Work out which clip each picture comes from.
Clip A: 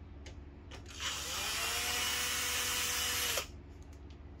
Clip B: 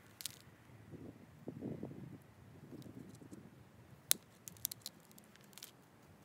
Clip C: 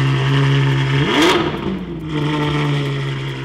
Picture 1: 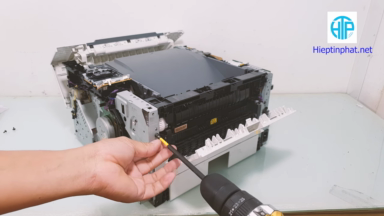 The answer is A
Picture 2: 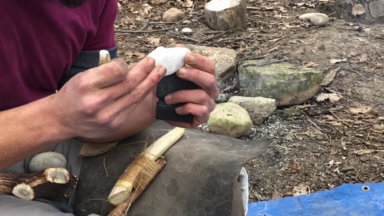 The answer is B